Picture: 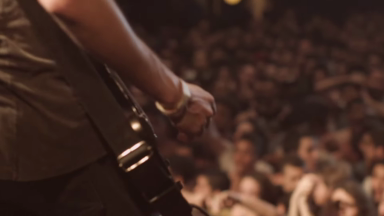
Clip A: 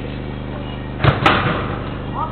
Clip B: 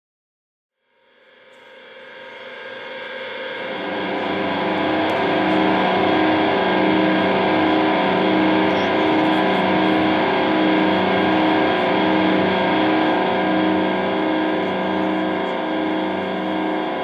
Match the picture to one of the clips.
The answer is B